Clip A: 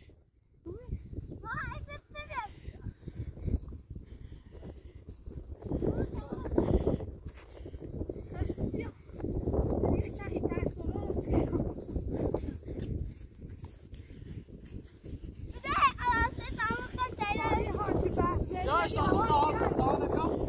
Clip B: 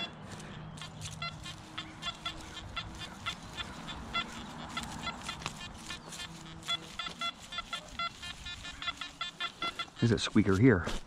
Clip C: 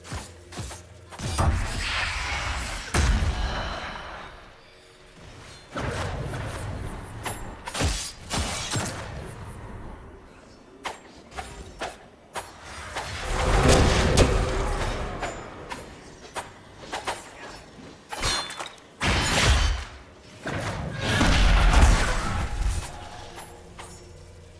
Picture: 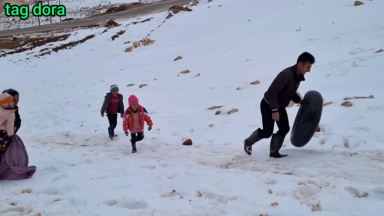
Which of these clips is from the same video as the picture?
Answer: A